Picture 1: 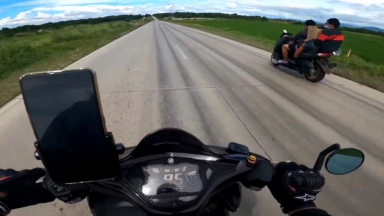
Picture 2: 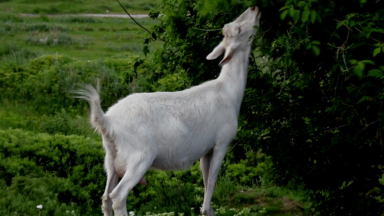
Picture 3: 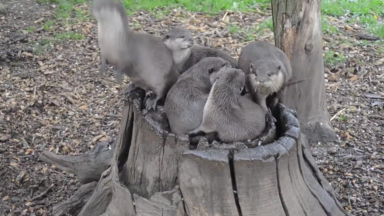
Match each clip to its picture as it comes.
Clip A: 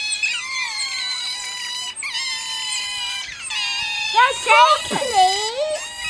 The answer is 3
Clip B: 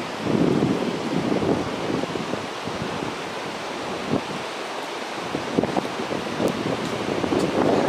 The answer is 2